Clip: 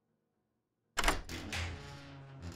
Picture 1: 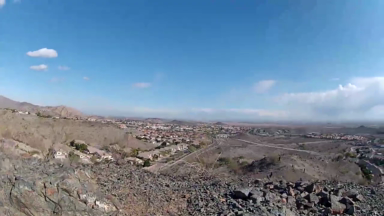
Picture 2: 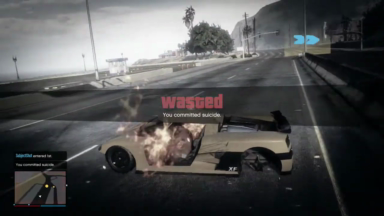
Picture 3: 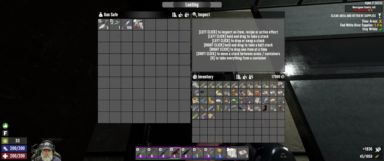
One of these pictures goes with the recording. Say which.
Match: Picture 3